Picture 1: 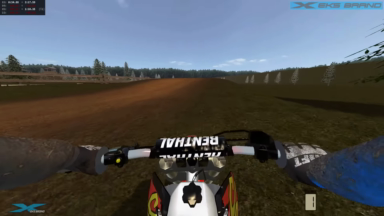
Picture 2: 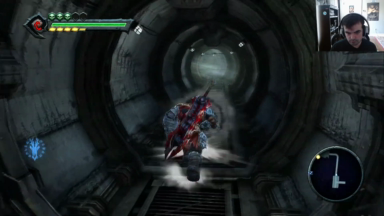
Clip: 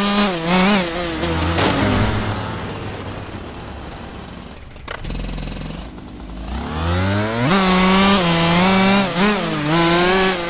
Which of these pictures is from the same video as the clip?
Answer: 1